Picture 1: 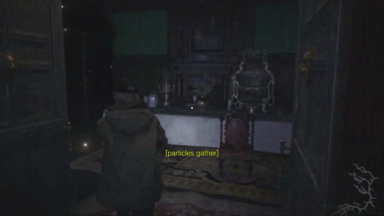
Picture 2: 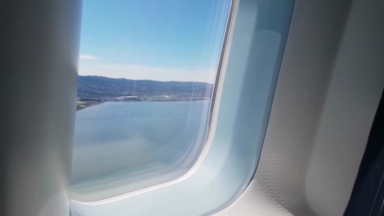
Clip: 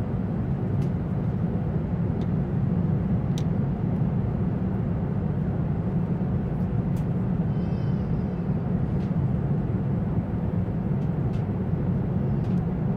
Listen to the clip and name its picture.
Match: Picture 2